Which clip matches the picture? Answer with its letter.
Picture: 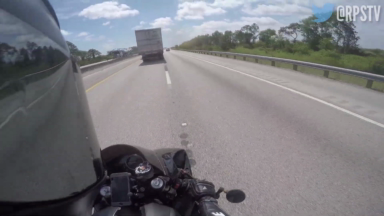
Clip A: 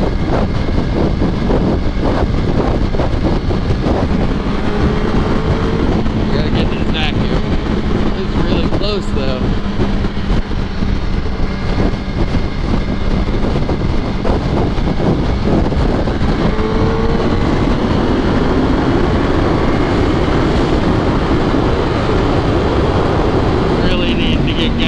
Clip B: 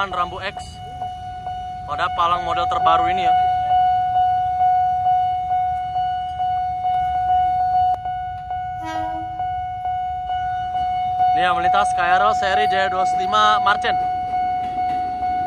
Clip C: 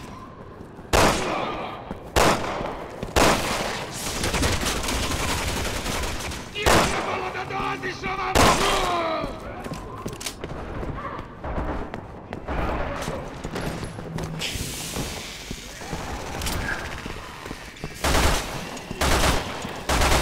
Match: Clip A